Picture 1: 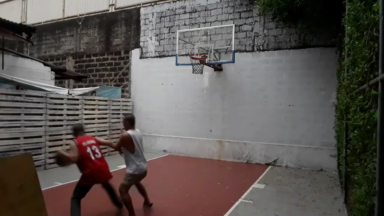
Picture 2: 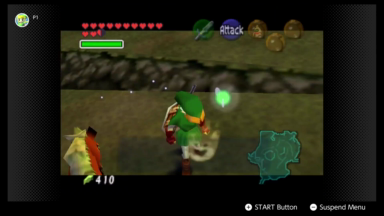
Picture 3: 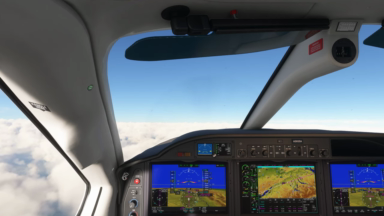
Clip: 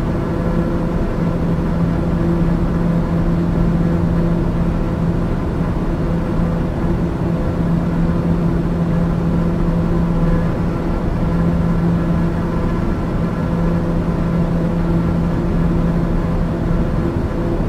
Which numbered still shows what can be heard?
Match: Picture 3